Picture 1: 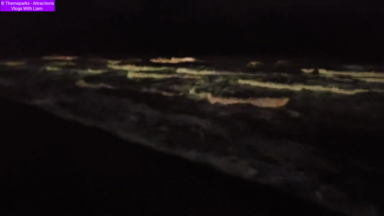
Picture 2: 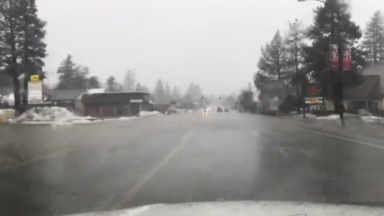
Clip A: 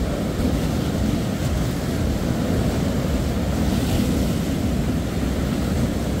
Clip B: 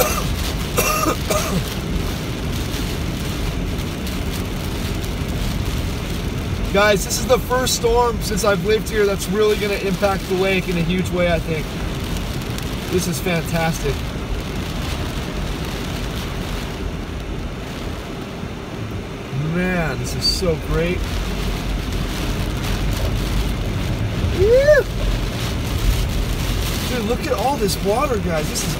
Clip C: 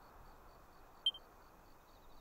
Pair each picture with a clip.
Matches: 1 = A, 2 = B